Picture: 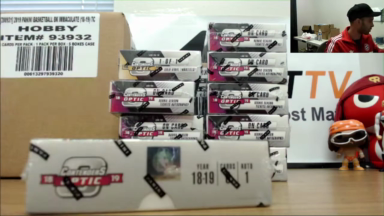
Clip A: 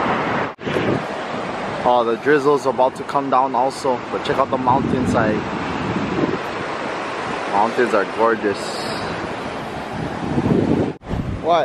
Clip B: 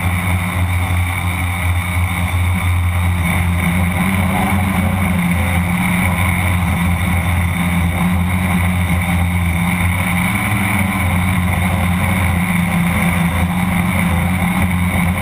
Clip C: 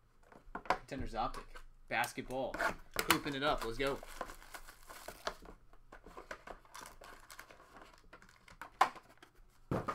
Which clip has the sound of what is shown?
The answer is C